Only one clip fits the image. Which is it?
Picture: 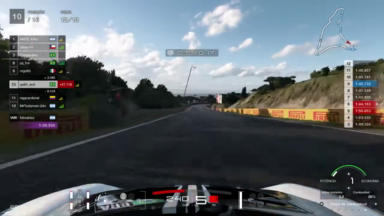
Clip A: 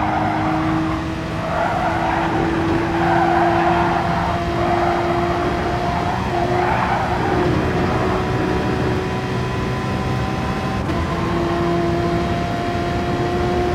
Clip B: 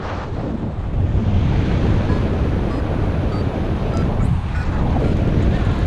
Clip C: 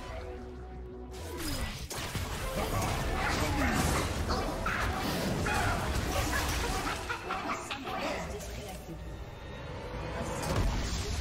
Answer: A